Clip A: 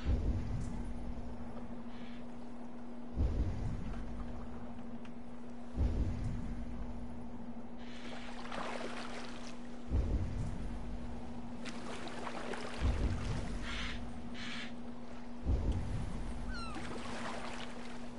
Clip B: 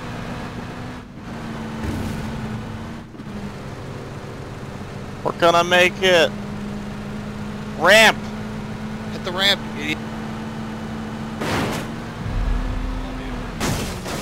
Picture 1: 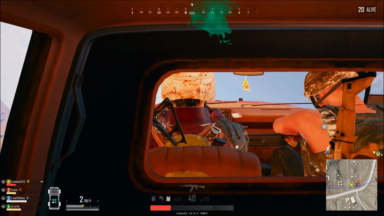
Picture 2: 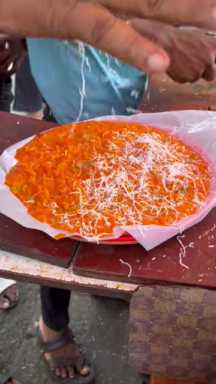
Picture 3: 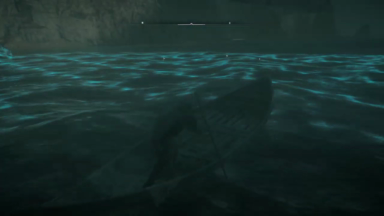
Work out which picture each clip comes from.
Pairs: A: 3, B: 1